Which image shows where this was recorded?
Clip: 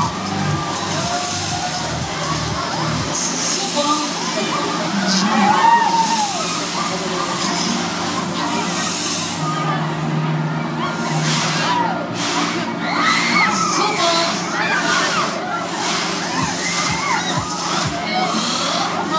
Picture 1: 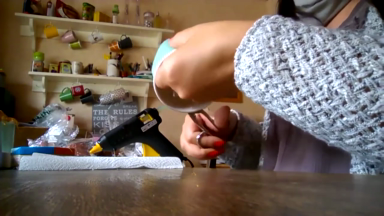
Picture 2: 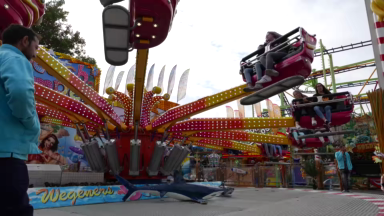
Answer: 2